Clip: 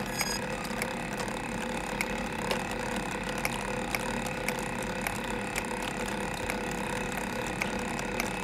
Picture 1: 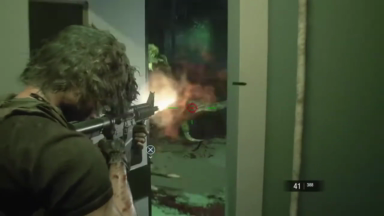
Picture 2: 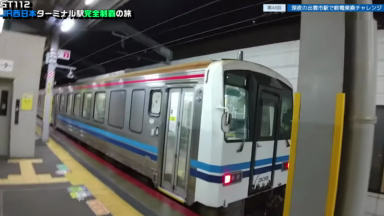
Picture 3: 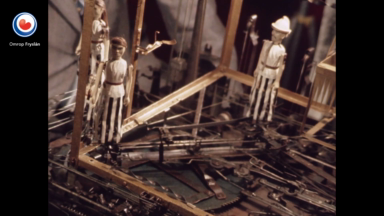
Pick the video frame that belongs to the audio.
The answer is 3